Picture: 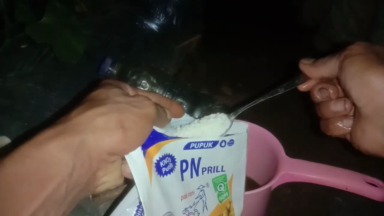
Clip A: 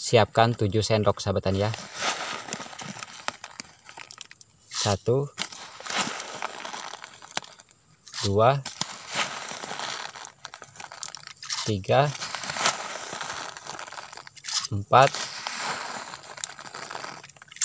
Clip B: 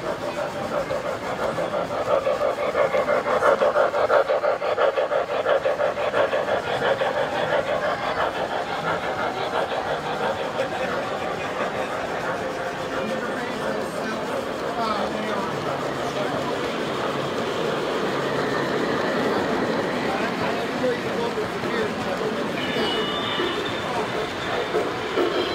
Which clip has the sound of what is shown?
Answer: A